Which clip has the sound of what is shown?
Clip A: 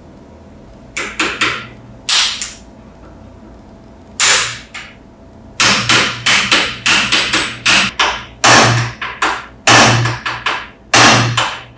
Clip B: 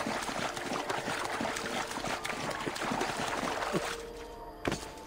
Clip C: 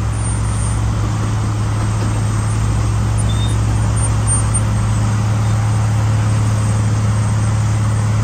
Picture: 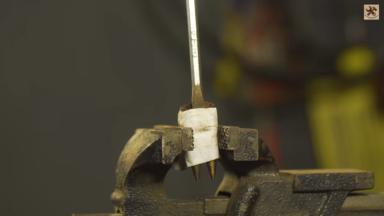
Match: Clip A